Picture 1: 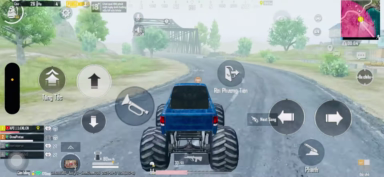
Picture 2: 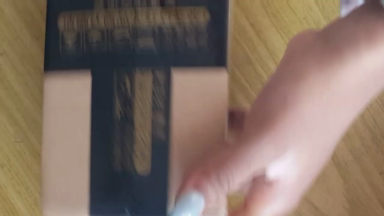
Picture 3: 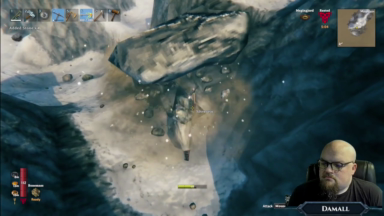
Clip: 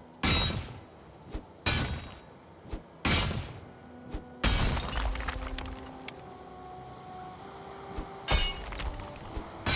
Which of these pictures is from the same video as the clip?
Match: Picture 3